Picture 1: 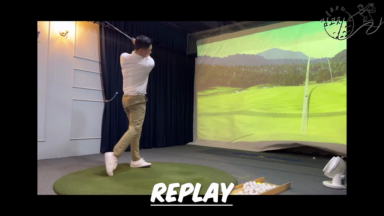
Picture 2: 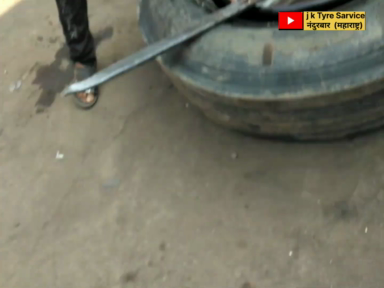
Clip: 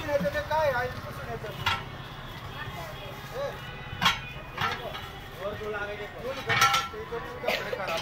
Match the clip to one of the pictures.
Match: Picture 2